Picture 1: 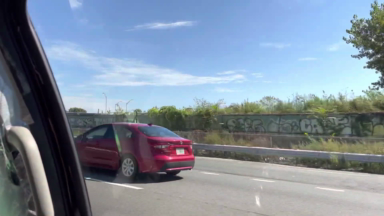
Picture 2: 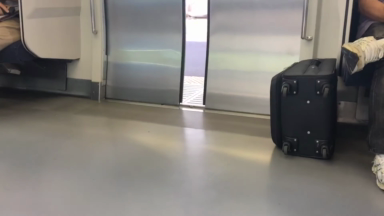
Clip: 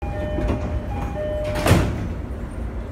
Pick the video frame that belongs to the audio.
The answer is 2